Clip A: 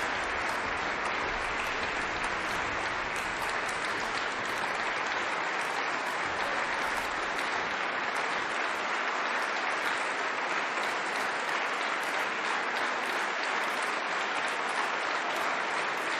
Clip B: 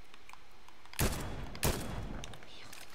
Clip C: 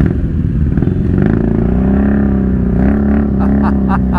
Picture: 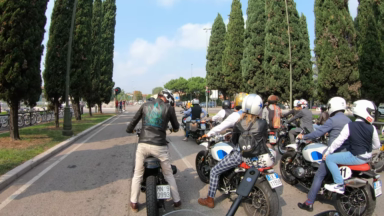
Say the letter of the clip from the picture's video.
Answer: C